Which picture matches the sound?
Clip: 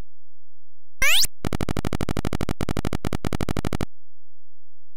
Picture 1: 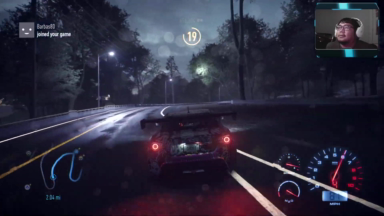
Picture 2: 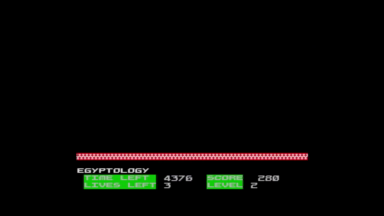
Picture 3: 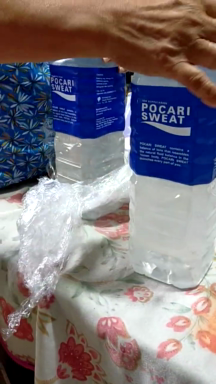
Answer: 2